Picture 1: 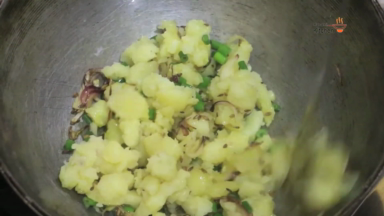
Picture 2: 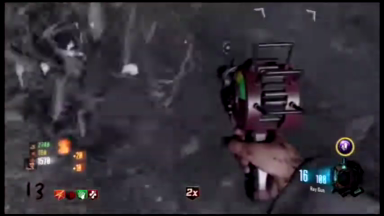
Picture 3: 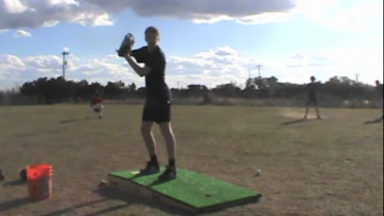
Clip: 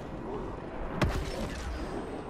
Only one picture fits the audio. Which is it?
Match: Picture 2